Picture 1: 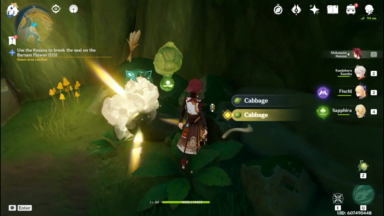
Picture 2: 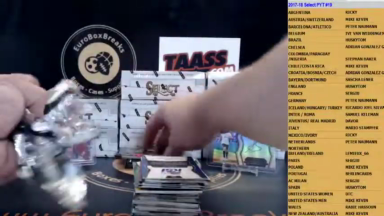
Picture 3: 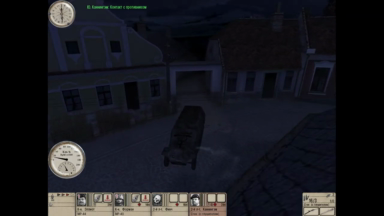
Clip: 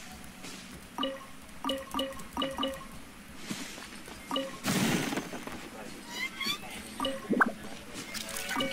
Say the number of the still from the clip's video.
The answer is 1